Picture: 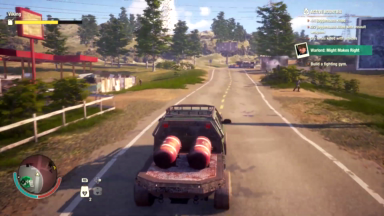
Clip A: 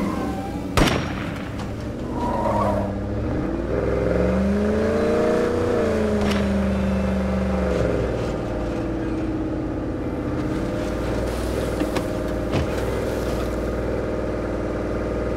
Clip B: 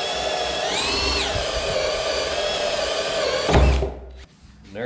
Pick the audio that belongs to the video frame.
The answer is A